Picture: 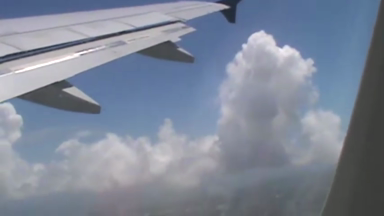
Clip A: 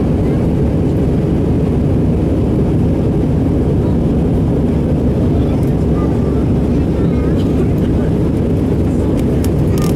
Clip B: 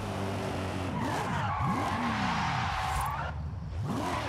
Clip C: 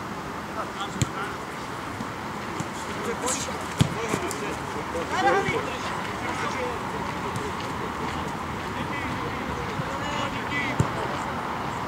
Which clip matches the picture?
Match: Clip A